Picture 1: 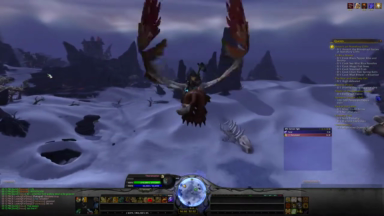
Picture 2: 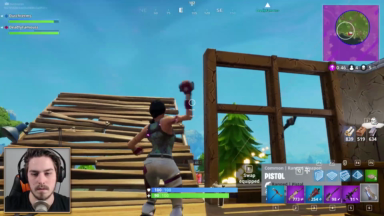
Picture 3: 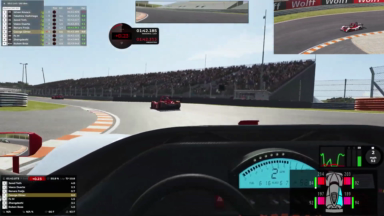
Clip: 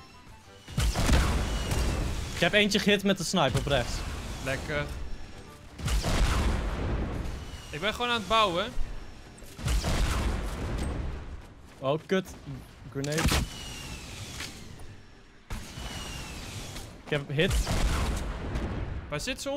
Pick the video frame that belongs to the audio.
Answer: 2